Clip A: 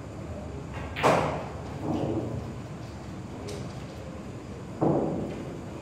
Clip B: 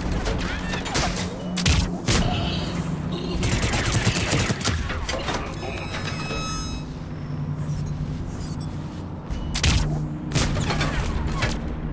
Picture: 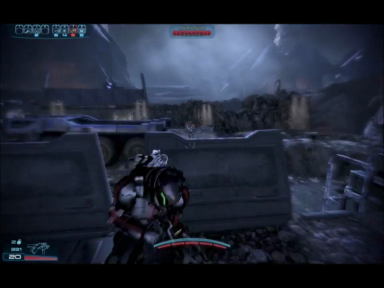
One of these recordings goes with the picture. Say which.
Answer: B